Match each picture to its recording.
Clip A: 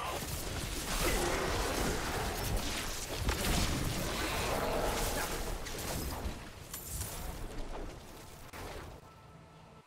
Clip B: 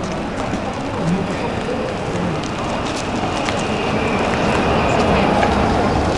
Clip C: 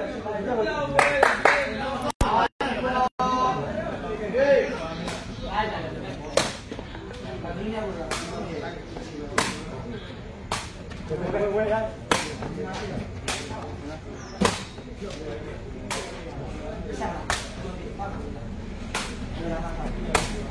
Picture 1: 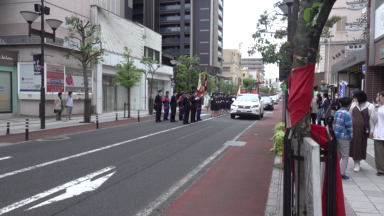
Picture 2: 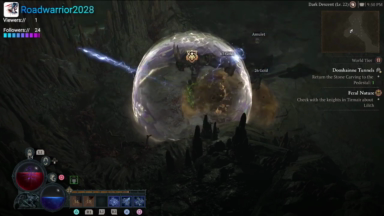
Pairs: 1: B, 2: A